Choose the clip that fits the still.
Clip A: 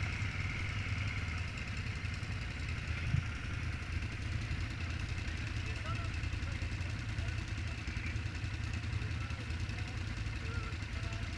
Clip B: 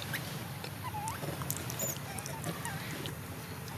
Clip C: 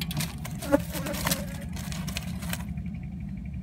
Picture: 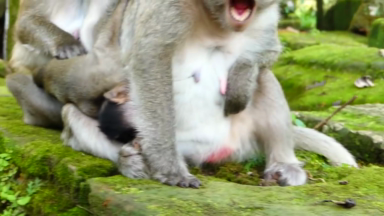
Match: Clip B